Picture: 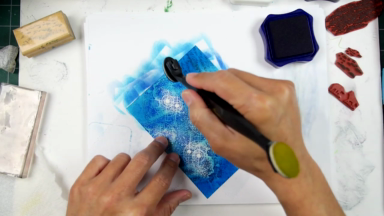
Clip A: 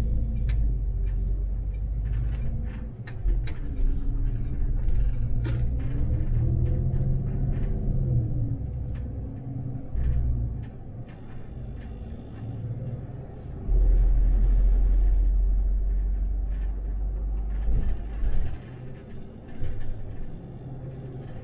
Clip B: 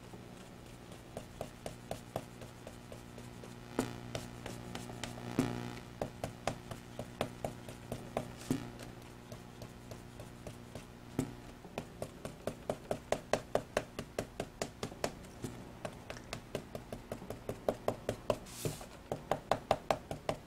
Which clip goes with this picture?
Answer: B